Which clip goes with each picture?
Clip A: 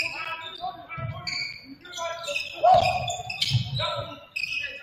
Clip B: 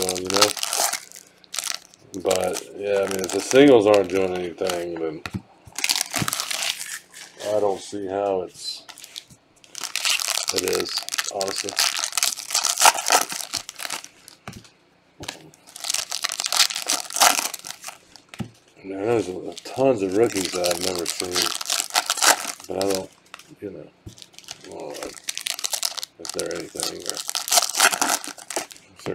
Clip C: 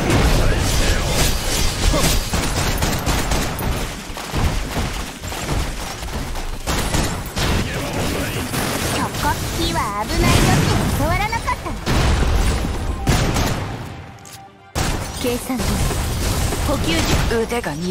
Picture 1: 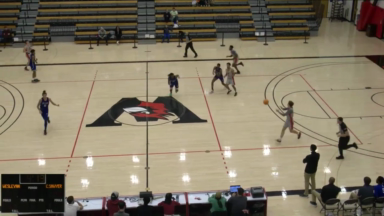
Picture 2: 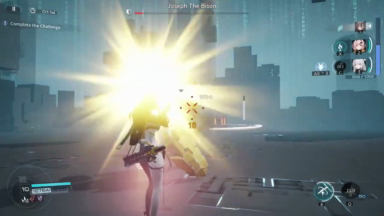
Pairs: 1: A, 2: C